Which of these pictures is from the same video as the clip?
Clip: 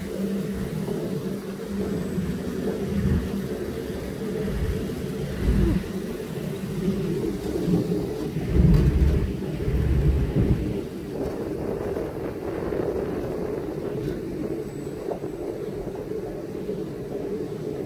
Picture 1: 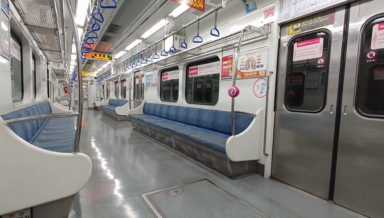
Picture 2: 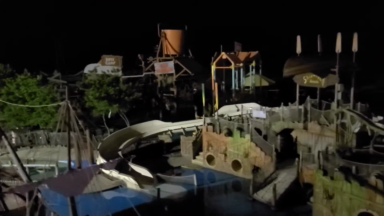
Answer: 2